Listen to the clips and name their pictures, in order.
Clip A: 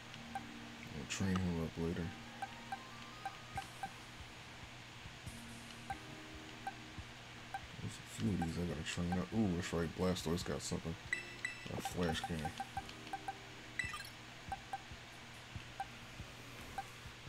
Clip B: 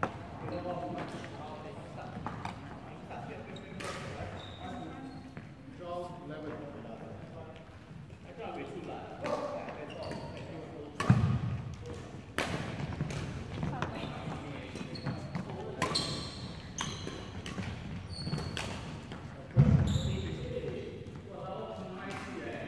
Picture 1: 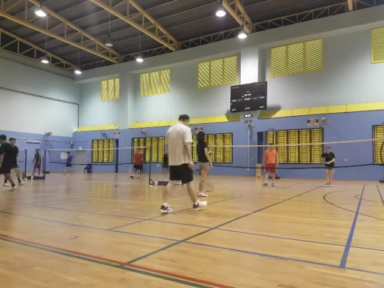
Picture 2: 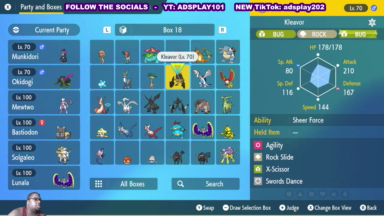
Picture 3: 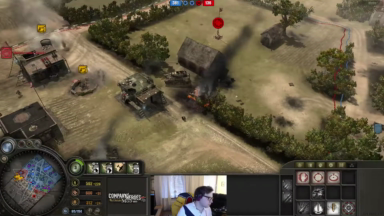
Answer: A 2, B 1